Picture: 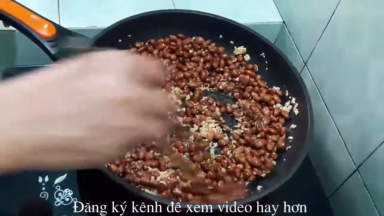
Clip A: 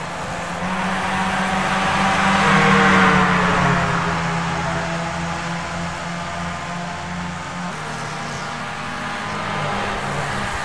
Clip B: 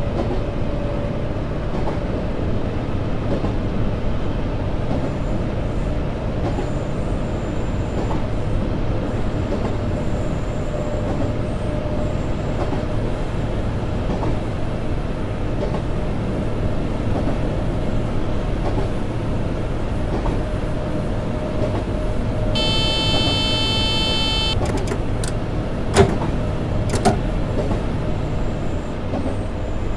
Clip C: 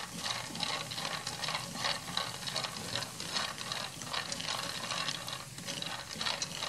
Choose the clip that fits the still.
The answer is C